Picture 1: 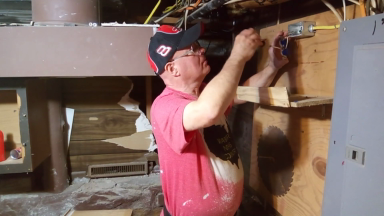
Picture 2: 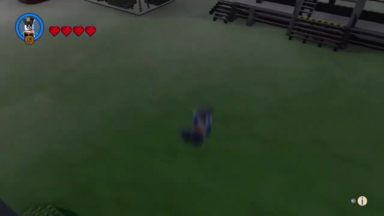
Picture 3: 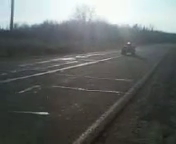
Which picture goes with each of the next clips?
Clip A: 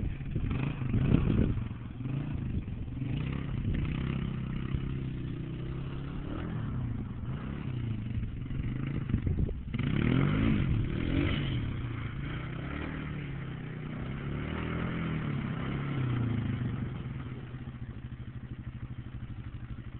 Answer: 3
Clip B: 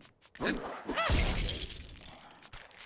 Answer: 2